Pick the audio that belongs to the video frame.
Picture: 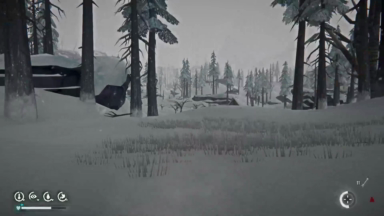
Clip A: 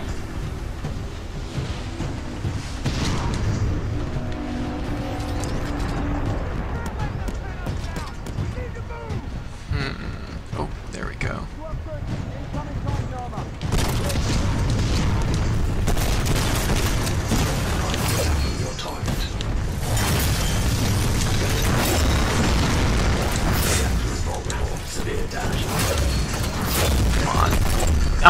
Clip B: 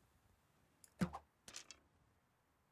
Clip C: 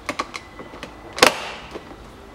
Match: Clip B